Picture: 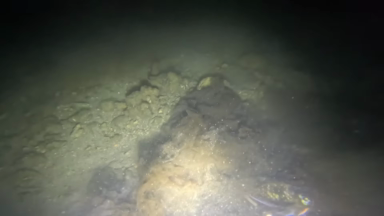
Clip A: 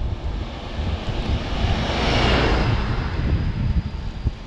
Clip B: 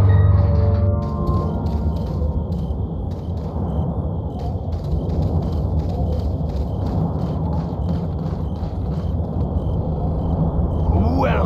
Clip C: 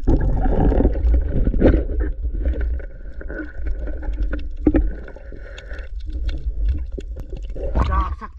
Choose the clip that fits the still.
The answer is C